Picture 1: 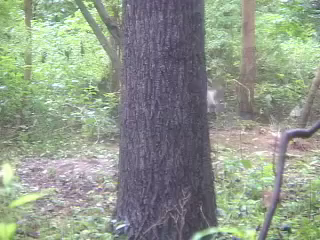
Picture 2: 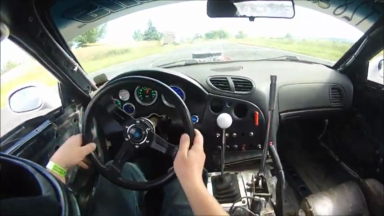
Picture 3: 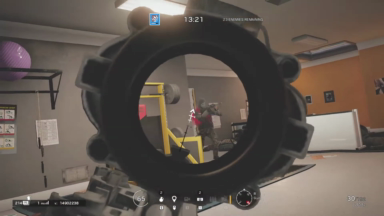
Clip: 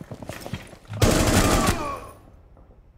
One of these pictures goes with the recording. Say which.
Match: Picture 3